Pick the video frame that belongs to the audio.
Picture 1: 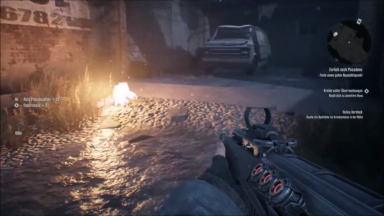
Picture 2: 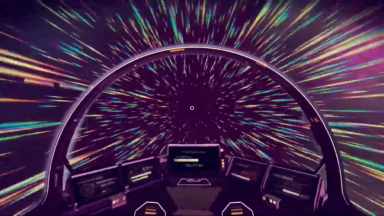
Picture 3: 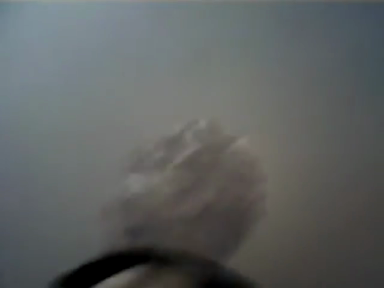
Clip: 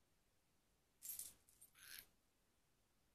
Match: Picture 3